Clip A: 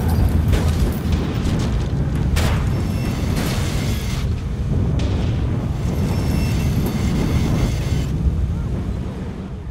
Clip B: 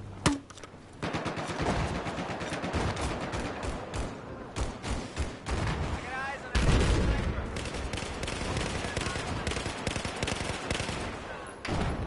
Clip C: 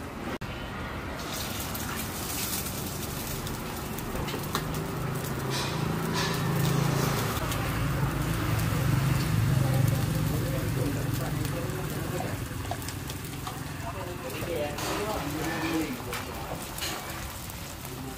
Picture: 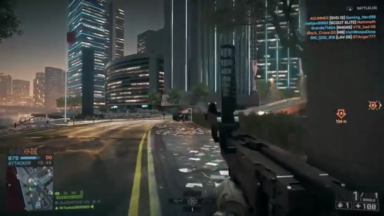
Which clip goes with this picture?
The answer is B